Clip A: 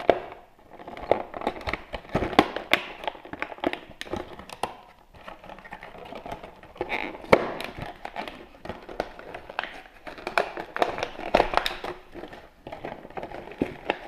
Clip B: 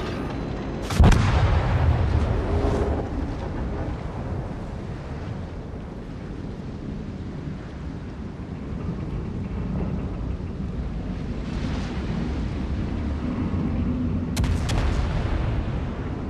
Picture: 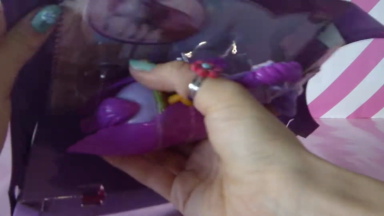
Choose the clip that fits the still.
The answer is A